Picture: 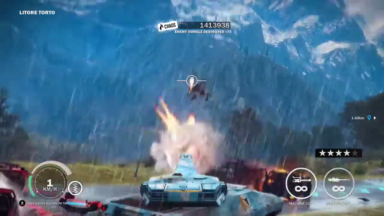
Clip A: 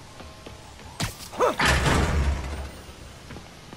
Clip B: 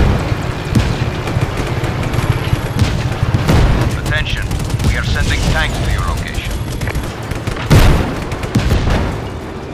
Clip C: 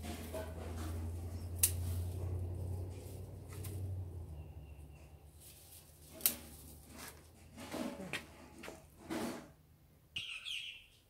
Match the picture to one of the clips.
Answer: B